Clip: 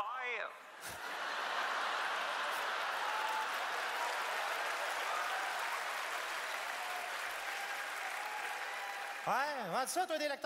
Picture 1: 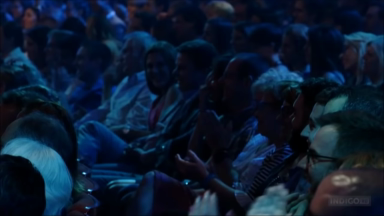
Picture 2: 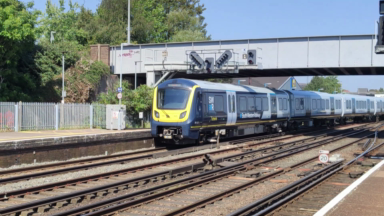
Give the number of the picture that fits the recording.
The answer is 1